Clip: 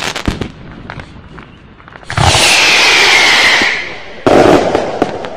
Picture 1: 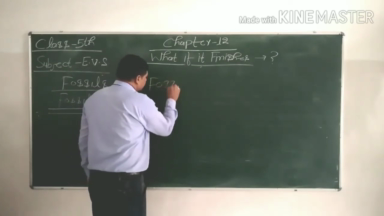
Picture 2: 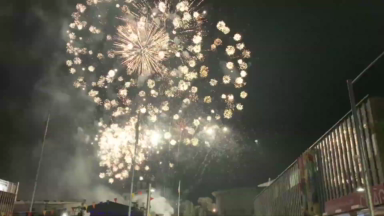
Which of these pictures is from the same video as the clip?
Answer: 2